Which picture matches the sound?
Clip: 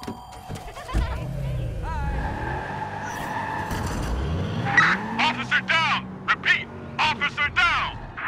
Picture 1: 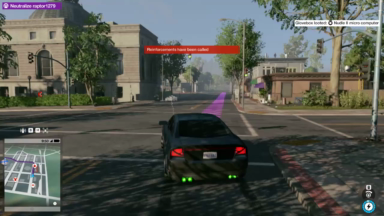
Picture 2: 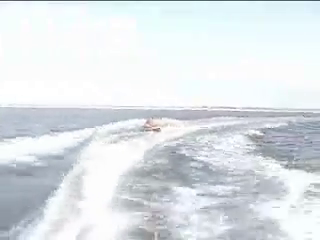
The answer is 1